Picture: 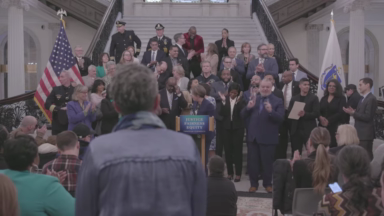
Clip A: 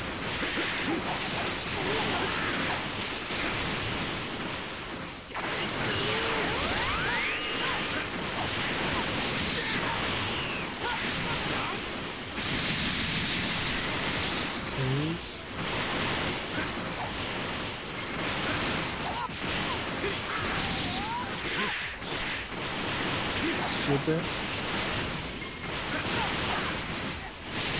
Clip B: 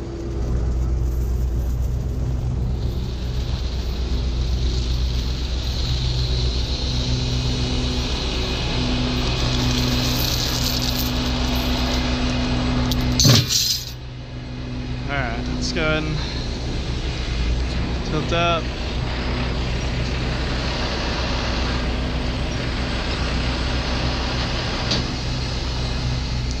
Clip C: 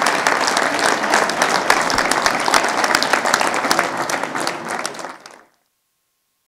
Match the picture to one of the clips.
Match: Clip C